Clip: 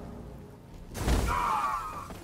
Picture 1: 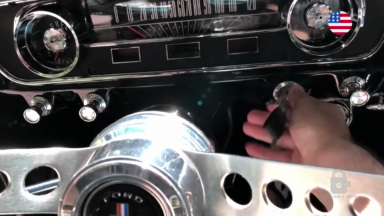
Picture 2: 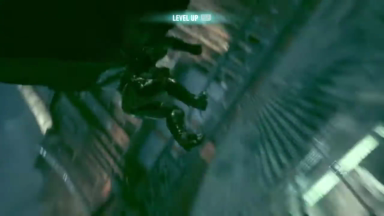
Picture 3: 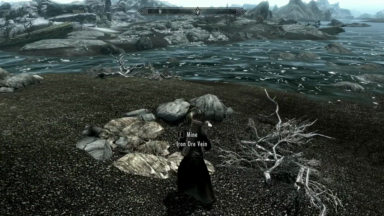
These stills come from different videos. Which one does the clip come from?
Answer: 2